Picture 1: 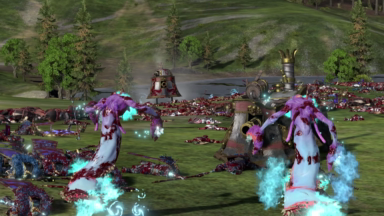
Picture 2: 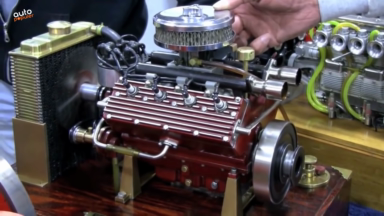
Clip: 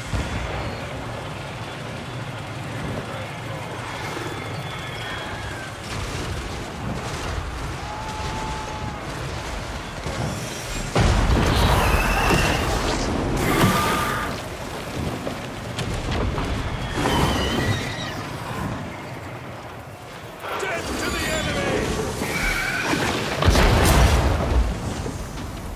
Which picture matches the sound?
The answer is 1